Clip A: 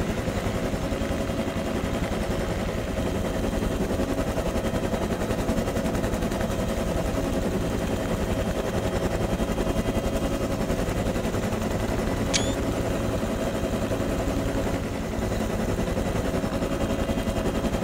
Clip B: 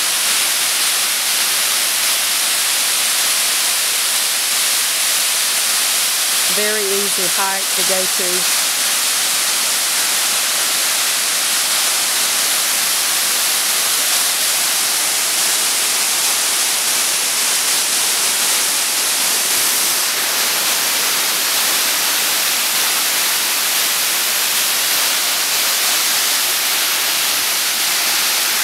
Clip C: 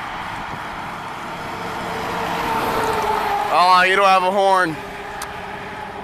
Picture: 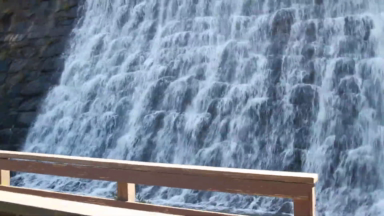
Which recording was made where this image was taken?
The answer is B